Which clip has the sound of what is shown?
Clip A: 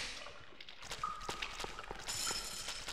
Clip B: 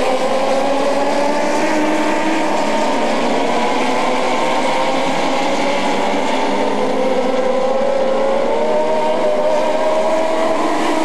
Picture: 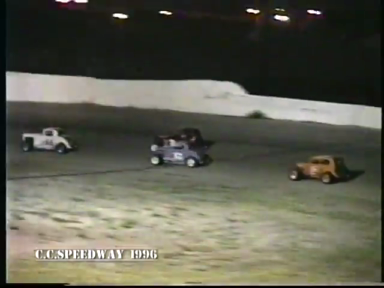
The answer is B